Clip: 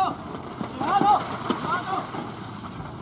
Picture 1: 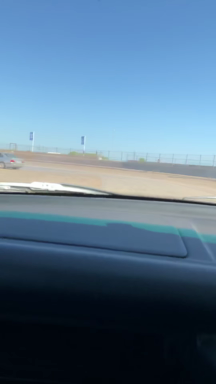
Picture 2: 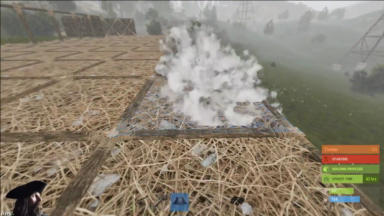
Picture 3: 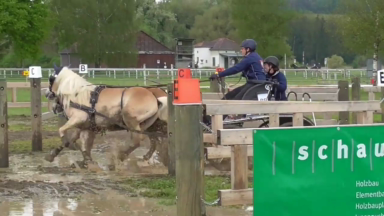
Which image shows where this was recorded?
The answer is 3